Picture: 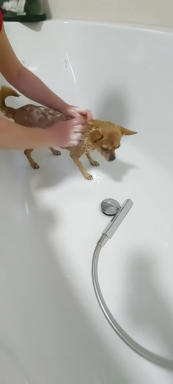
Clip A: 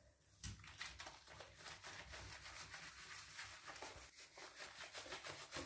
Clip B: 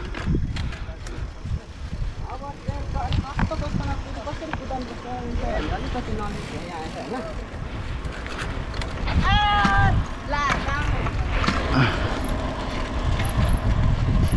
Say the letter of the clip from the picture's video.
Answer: A